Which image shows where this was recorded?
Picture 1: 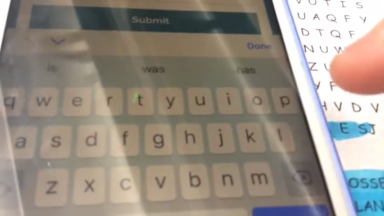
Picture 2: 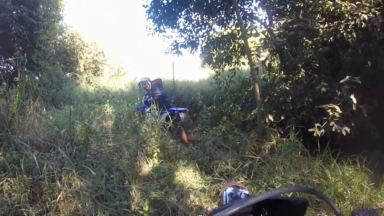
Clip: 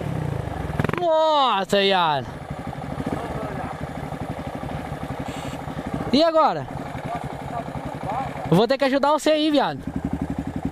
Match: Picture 2